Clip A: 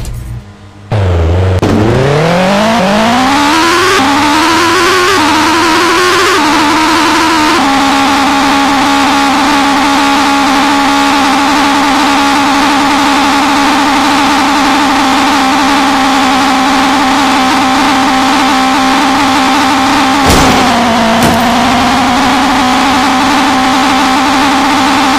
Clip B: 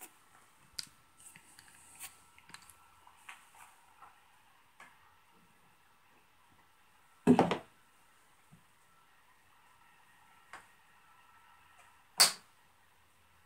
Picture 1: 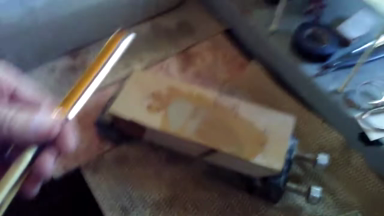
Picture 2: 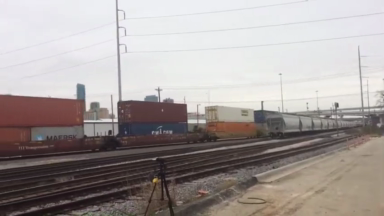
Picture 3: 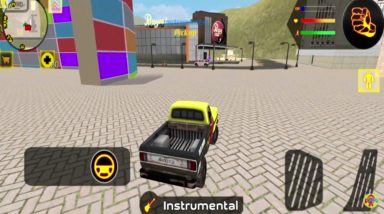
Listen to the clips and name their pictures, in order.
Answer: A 3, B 1